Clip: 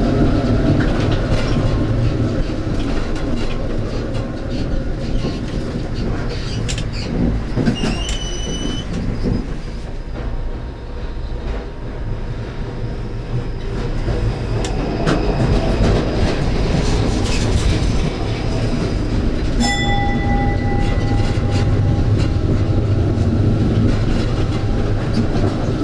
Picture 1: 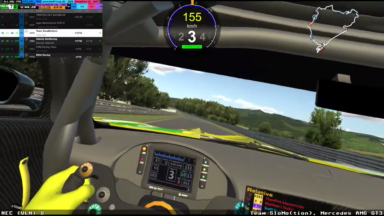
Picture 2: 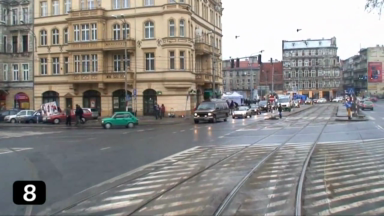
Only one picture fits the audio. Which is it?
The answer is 2